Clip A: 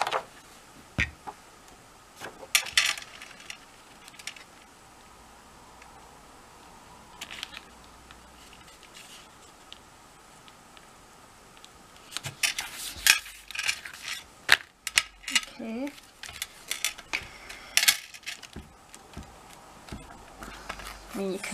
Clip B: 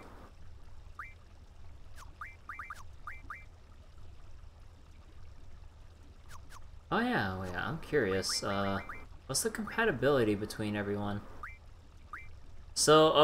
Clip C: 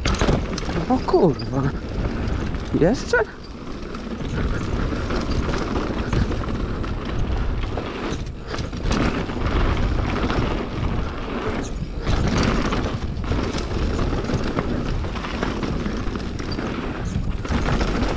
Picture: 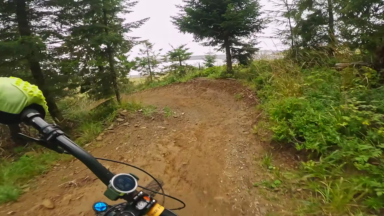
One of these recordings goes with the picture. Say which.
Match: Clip C